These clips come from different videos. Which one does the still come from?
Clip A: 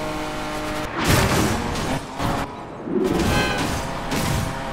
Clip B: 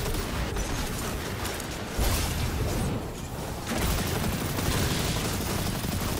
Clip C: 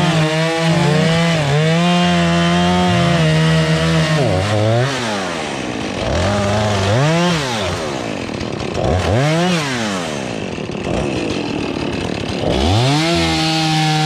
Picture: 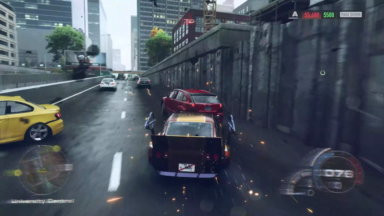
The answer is A